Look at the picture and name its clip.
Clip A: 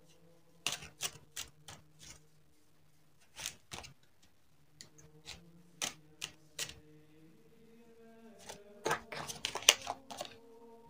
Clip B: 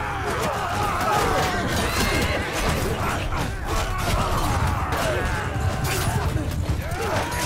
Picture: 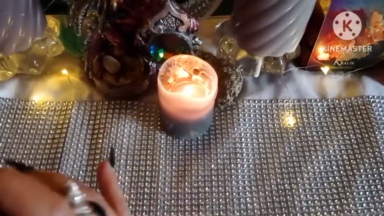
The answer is A